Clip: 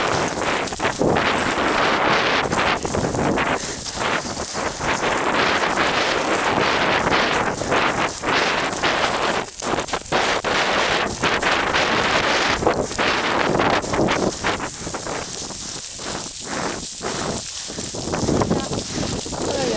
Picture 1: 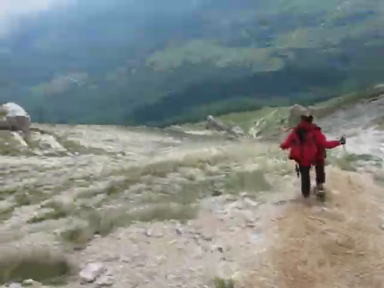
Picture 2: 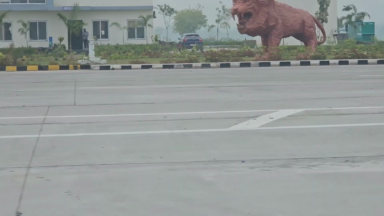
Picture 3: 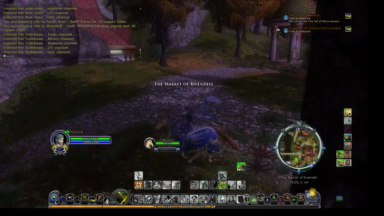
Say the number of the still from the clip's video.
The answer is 1